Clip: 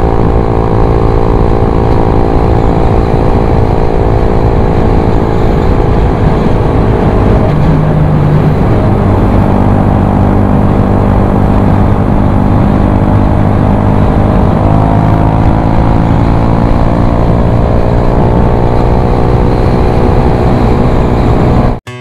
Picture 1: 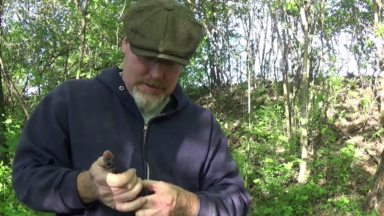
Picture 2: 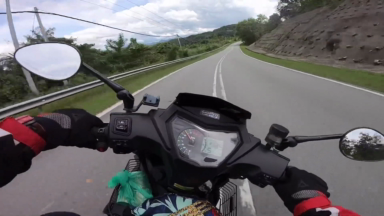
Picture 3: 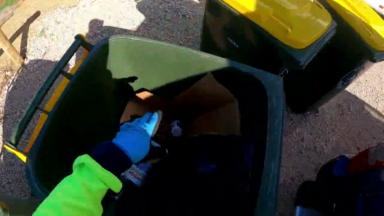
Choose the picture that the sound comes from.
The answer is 2